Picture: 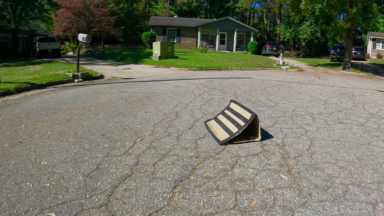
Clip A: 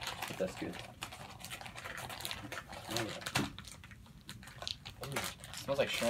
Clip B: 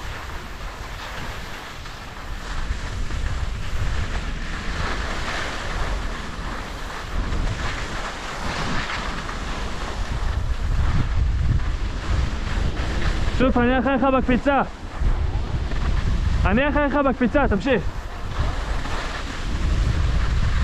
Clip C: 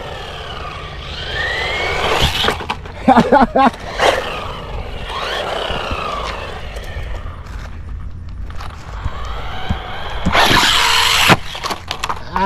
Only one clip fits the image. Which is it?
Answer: C